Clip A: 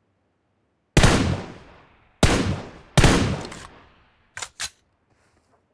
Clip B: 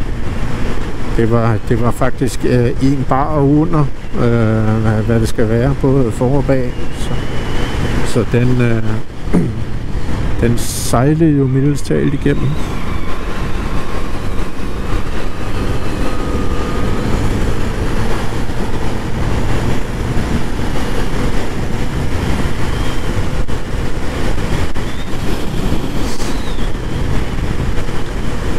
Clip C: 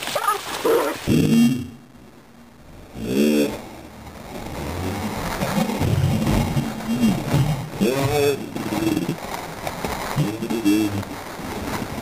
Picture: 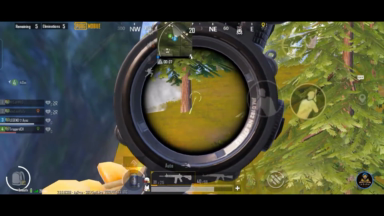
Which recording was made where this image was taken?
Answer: A